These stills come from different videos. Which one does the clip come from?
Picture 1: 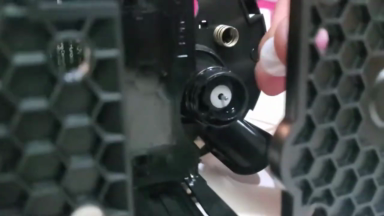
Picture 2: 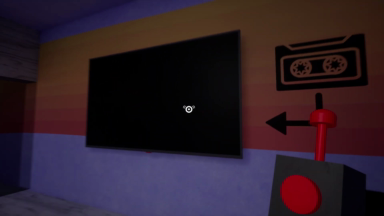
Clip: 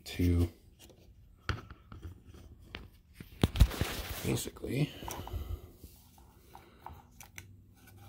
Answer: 1